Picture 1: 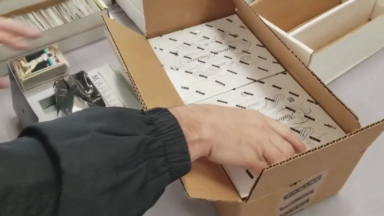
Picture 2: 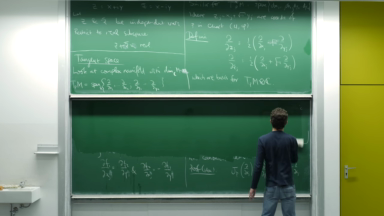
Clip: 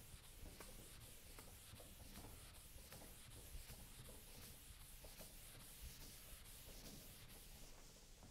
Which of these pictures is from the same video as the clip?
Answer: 2